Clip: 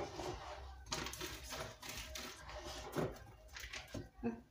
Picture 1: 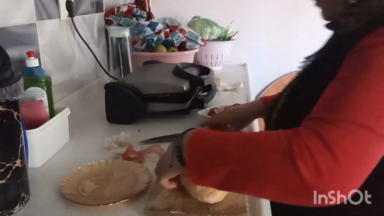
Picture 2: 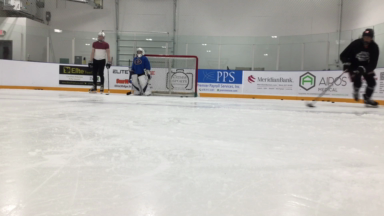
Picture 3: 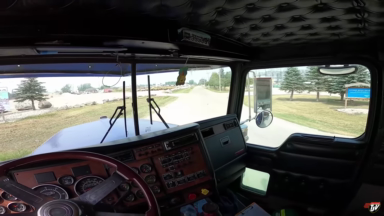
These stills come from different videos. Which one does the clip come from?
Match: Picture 1